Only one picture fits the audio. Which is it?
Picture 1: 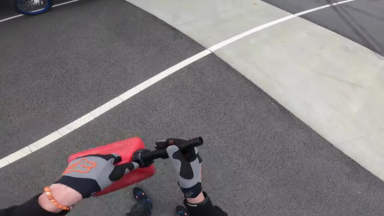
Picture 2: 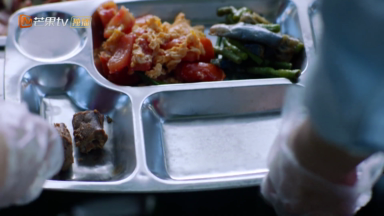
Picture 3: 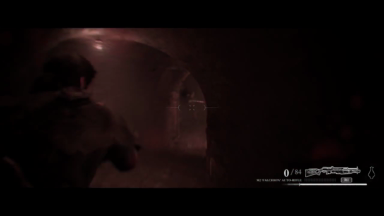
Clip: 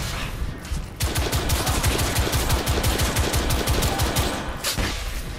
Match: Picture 3